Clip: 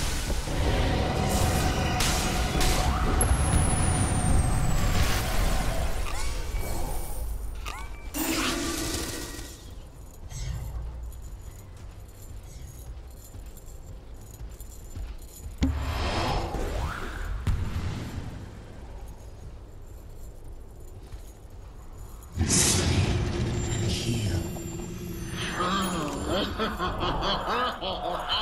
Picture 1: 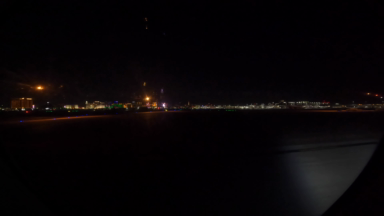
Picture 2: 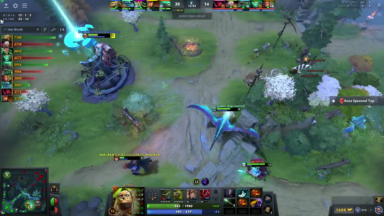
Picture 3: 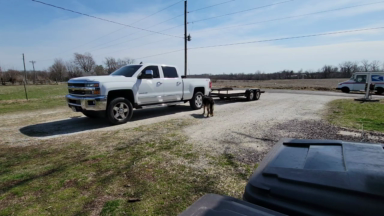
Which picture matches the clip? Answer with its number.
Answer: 2